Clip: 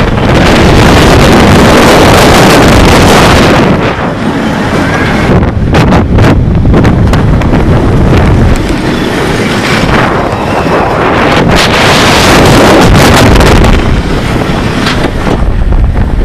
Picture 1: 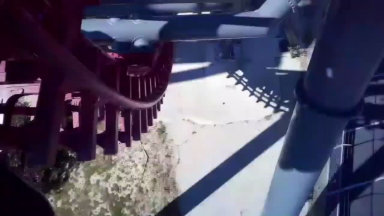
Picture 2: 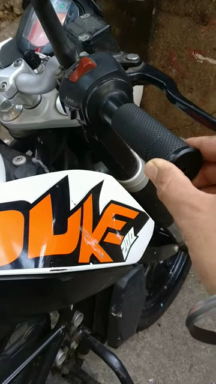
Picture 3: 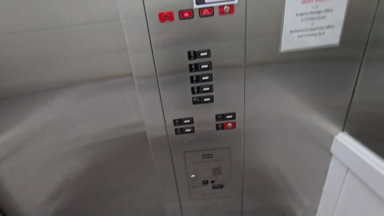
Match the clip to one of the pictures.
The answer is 1